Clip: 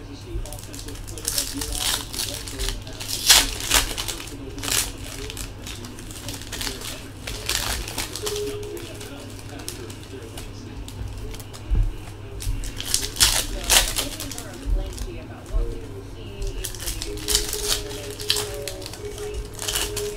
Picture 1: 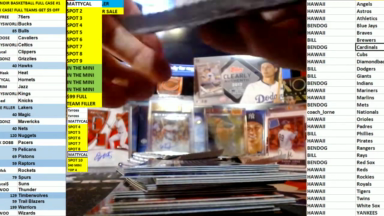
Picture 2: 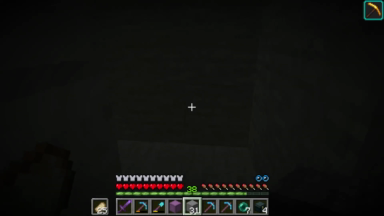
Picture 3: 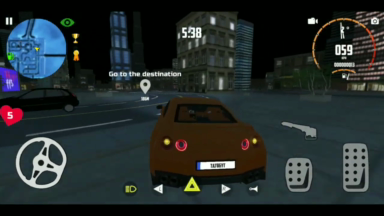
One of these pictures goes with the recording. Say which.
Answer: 1